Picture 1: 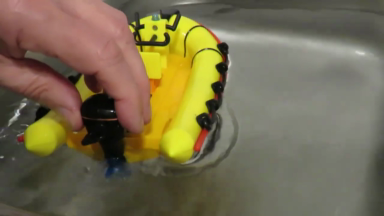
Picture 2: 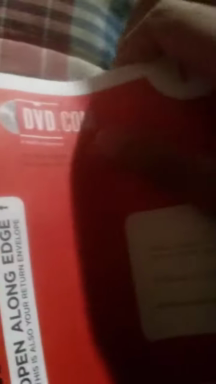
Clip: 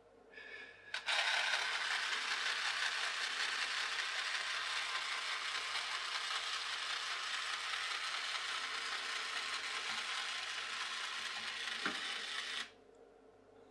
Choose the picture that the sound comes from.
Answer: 1